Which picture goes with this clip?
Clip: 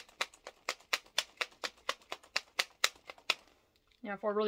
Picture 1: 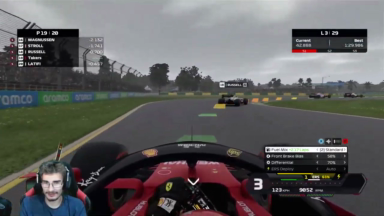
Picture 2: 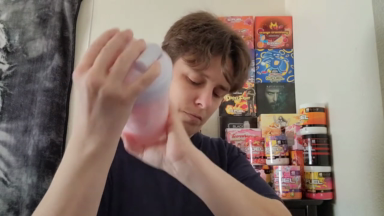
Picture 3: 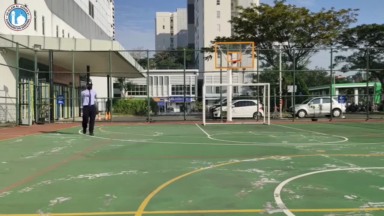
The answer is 2